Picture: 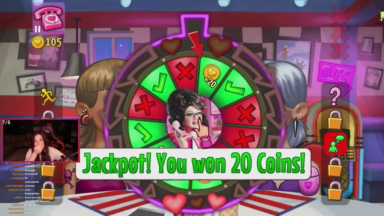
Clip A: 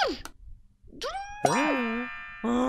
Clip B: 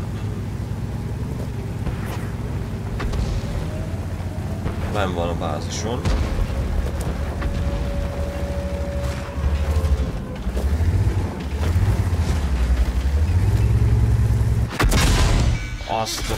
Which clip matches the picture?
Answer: A